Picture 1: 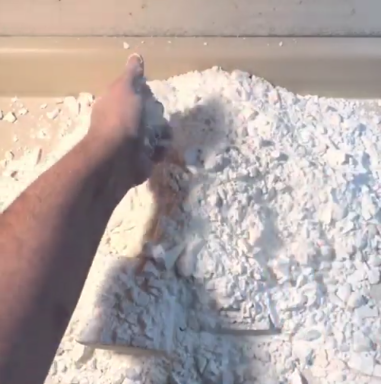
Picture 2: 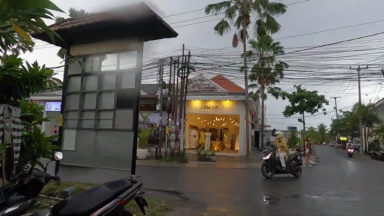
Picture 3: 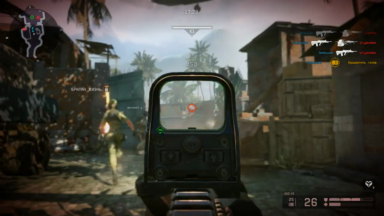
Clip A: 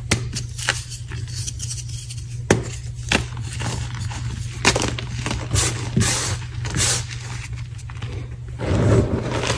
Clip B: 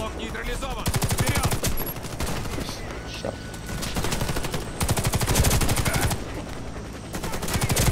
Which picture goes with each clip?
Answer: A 1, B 3